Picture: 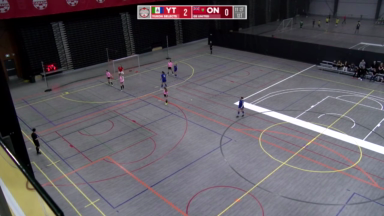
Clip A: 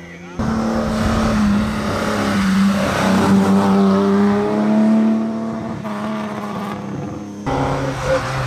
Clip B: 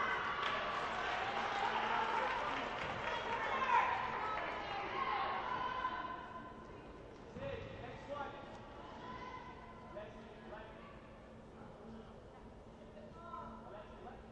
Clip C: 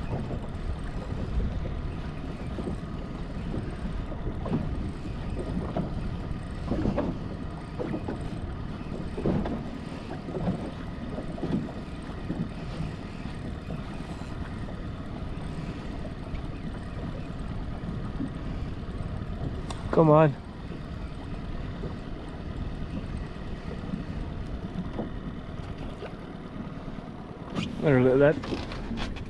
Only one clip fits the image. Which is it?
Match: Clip B